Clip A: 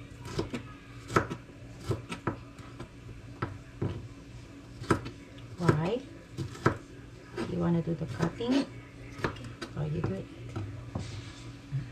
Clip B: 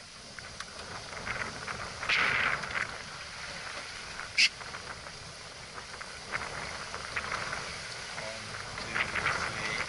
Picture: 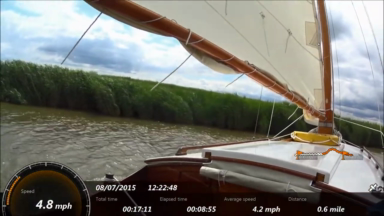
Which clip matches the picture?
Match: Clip B